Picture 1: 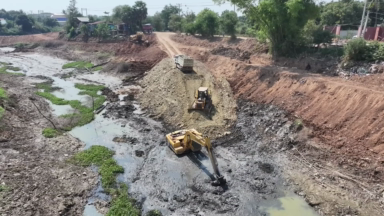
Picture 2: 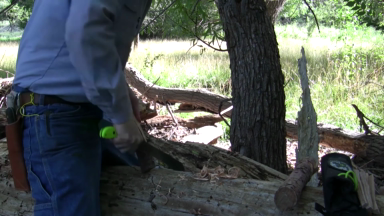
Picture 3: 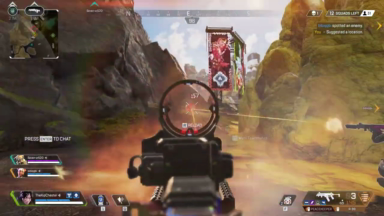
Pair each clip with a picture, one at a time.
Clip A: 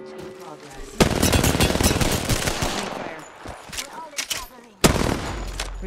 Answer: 3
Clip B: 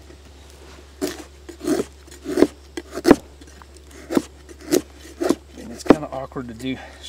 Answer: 2